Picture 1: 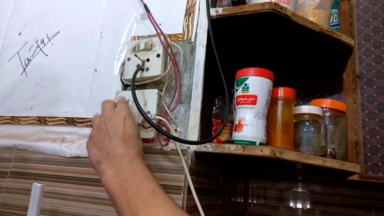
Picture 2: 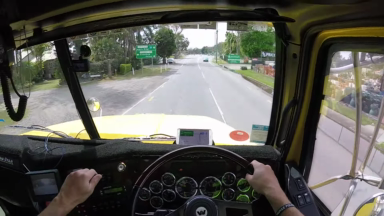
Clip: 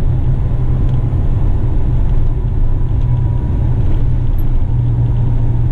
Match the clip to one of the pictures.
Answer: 2